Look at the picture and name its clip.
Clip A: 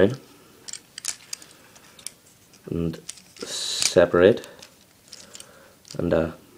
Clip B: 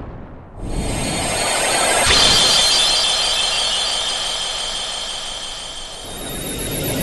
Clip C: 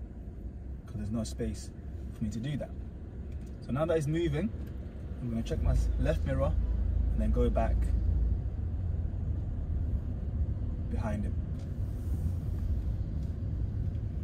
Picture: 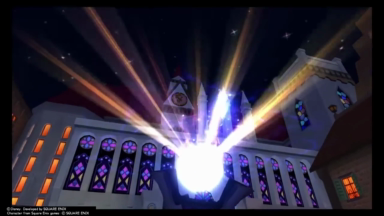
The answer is B